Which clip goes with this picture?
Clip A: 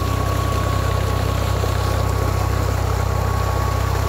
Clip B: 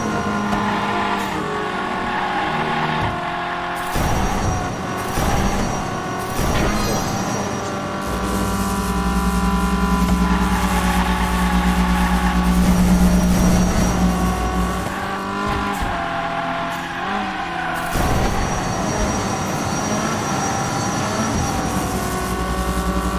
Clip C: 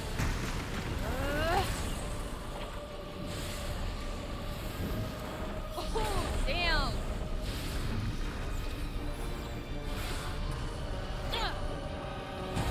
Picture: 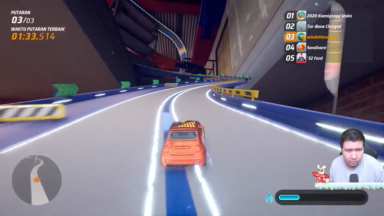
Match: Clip B